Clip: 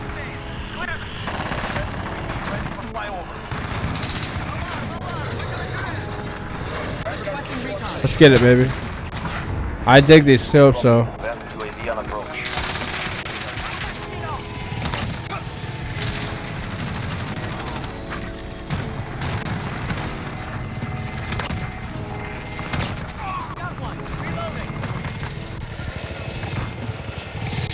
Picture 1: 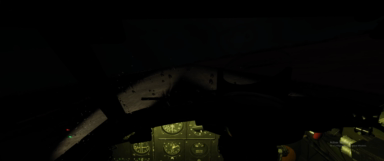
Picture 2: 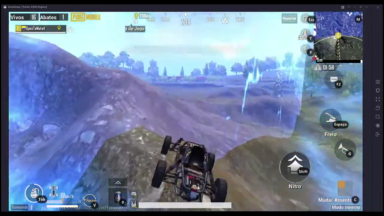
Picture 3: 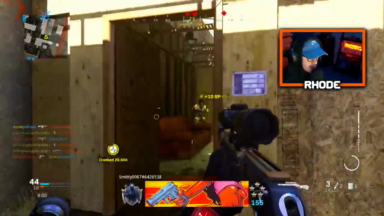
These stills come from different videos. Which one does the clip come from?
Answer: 3